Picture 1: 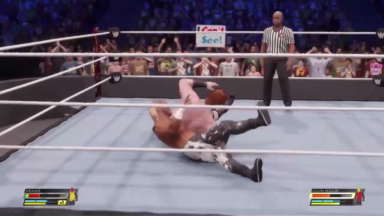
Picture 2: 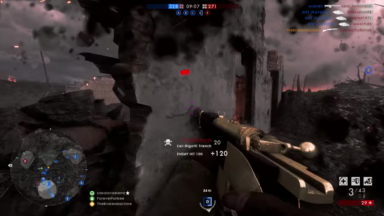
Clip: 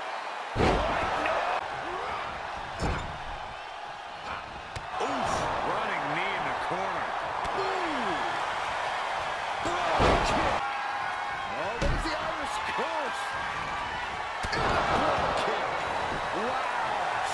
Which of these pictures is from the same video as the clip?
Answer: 1